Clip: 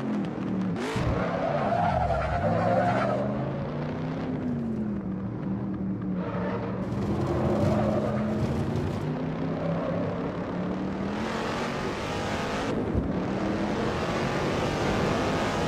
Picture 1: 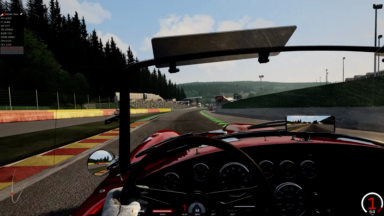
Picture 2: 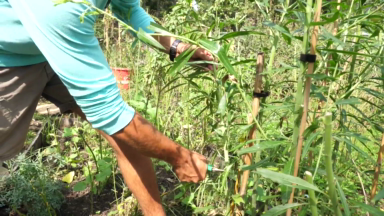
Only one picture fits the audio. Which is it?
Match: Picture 1